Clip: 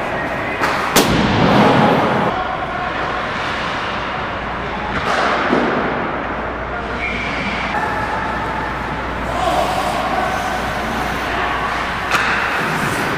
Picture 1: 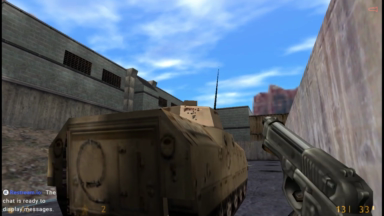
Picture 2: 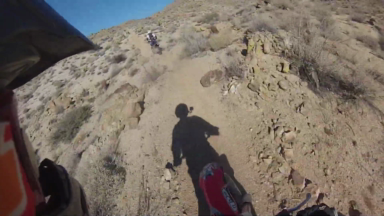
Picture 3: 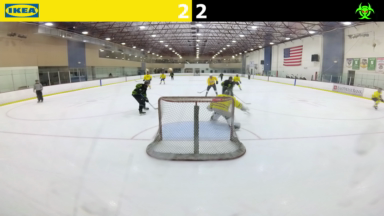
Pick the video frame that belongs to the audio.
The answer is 3